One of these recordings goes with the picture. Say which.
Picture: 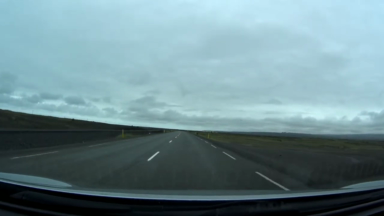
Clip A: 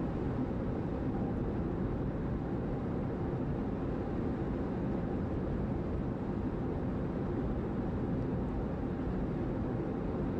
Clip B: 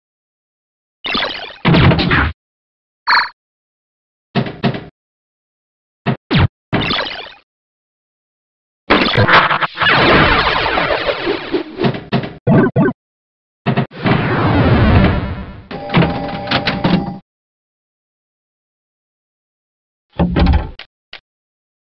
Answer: A